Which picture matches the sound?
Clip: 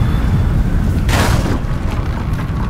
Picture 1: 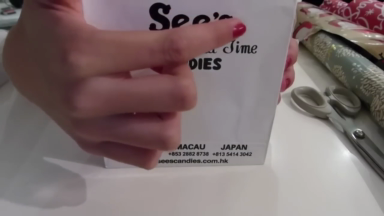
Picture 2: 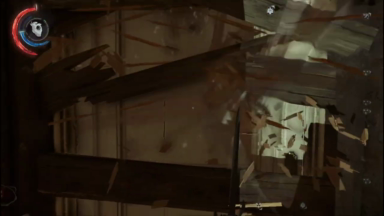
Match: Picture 2